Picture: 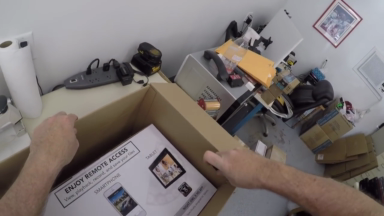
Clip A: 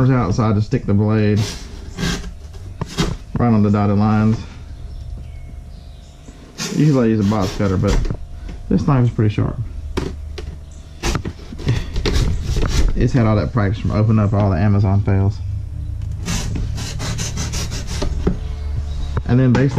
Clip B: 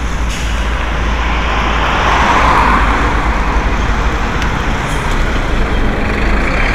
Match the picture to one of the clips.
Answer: A